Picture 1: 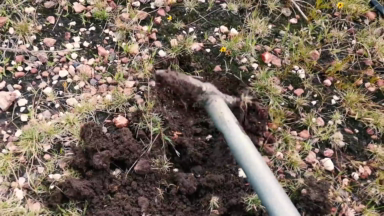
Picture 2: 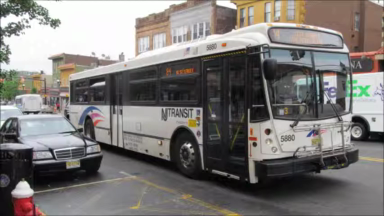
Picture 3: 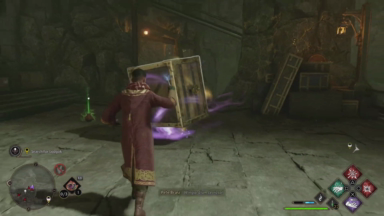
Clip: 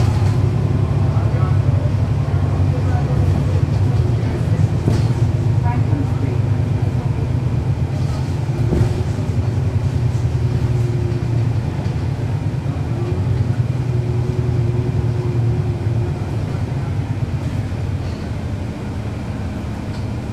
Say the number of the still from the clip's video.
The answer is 2